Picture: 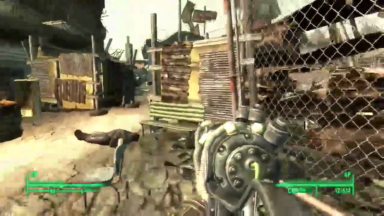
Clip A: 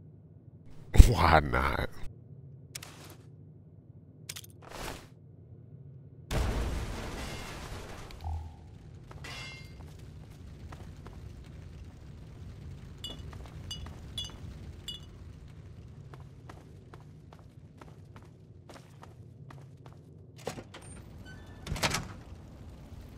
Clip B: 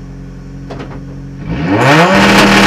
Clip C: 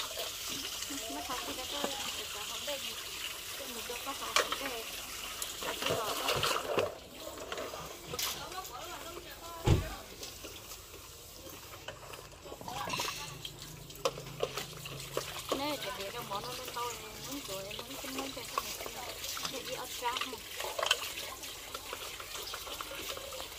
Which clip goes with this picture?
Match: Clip A